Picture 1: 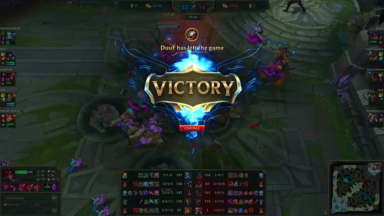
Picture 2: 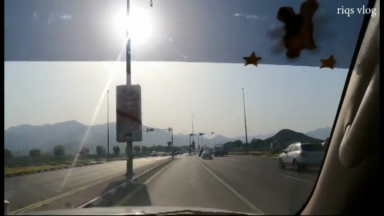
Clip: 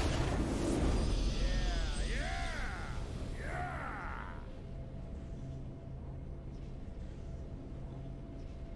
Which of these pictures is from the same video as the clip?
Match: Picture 1